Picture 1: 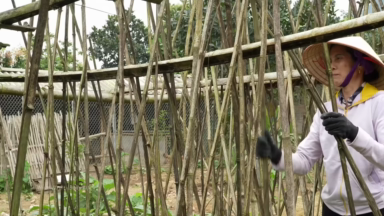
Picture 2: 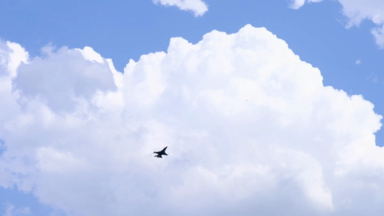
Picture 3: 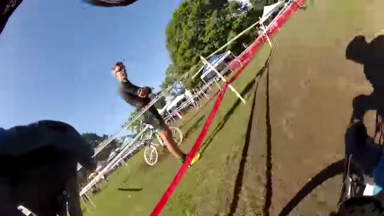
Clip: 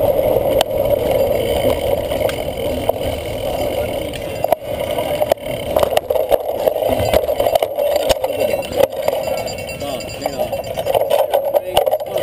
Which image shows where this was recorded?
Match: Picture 3